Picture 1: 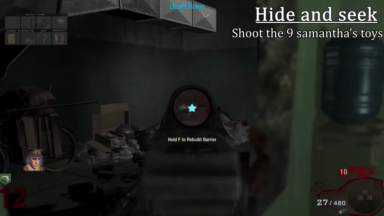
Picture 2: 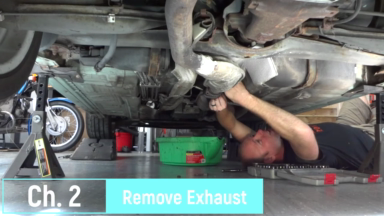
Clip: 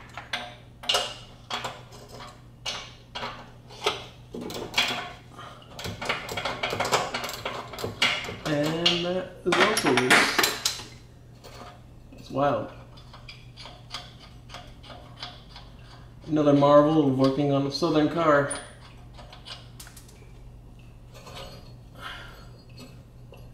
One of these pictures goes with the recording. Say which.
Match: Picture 2